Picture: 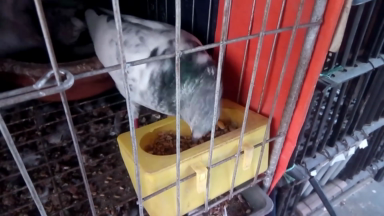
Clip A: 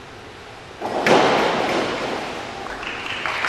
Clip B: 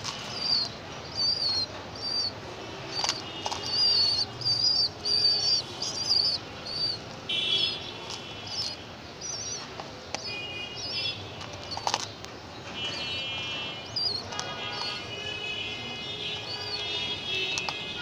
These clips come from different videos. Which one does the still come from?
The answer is B